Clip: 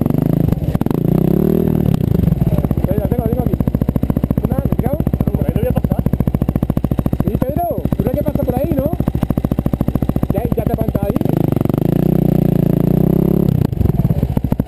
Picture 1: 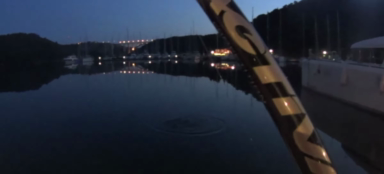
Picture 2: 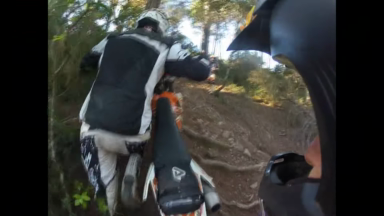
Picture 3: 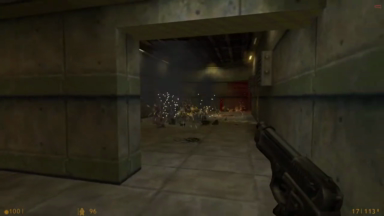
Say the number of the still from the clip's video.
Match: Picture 2